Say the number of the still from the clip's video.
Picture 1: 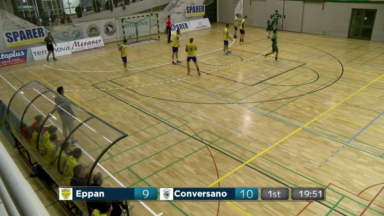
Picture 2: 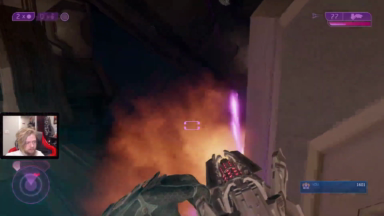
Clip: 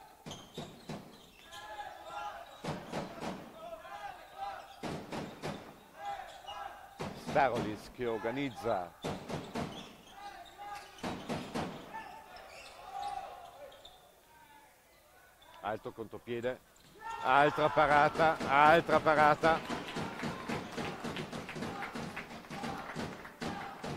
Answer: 1